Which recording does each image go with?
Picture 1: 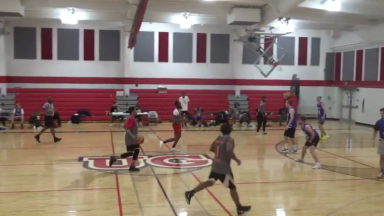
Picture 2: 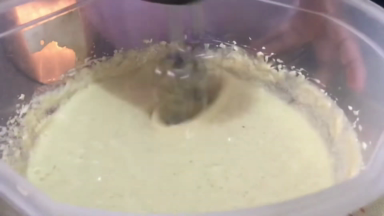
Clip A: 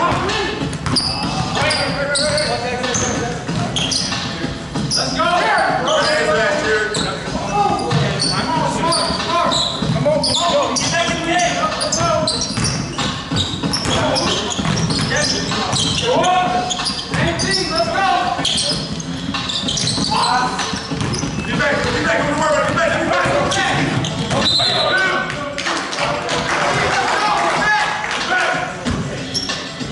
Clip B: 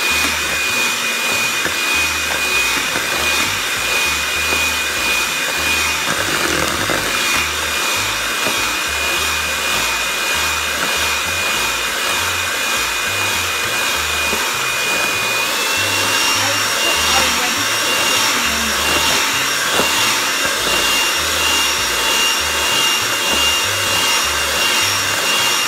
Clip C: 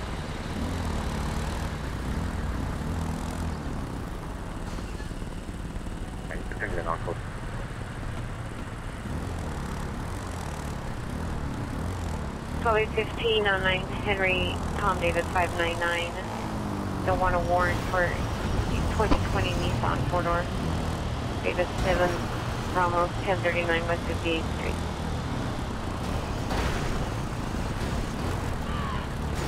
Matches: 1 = A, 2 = B